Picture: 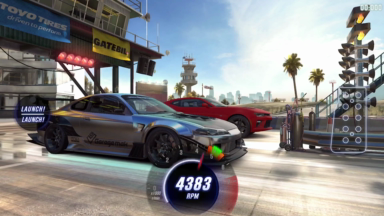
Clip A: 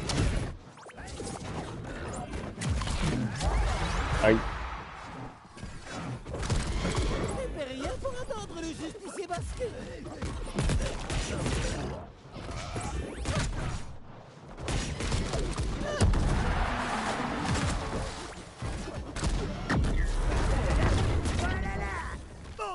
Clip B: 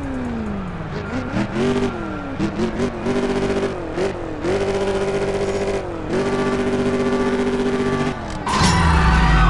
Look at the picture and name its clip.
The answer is B